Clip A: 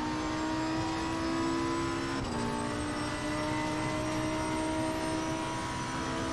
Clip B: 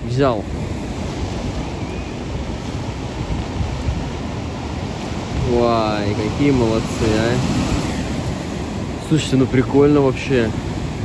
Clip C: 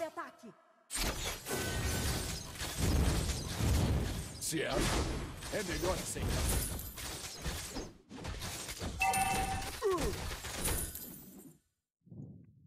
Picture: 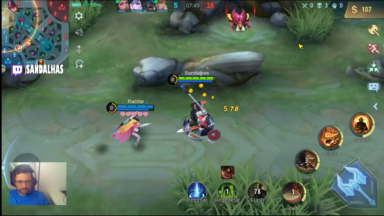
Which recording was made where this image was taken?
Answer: C